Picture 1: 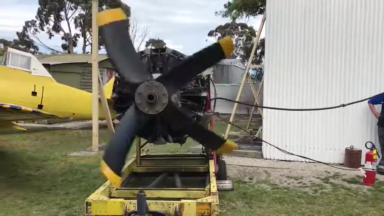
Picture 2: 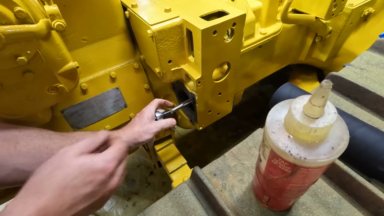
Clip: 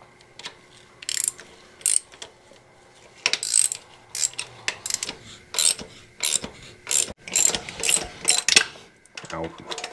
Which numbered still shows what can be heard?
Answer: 2